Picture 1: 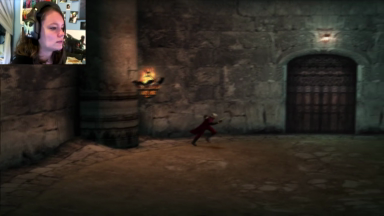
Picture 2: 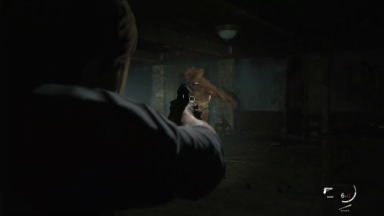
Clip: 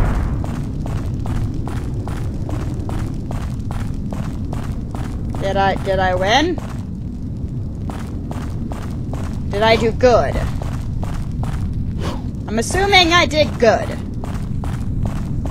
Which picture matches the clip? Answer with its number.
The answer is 1